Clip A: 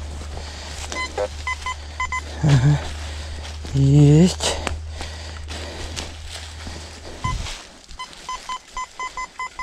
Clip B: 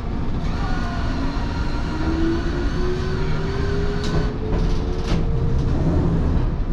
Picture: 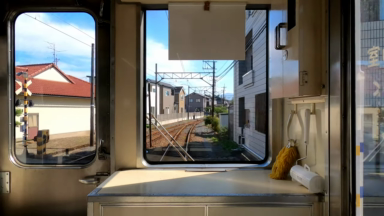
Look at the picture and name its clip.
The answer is B